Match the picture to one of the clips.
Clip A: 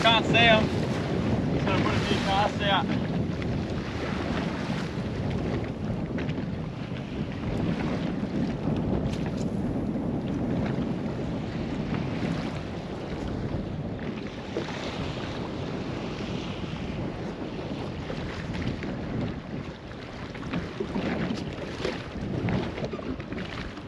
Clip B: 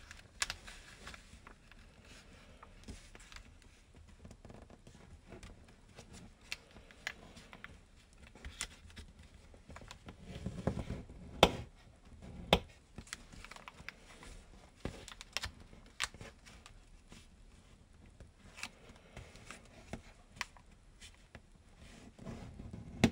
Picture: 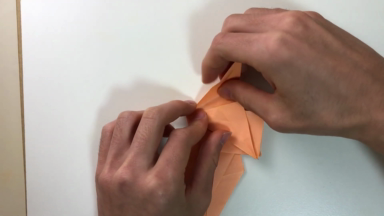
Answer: B